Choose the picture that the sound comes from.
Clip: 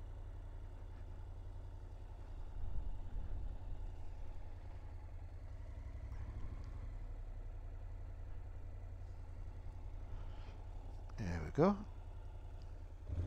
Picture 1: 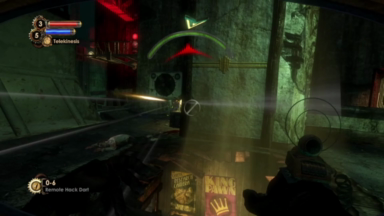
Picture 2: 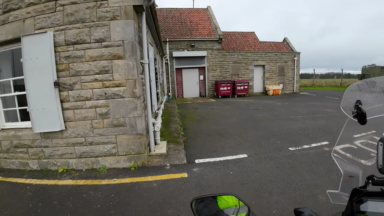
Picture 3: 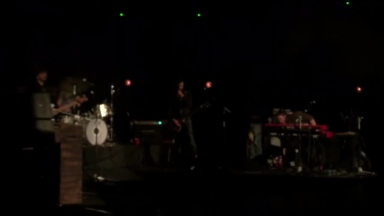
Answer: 2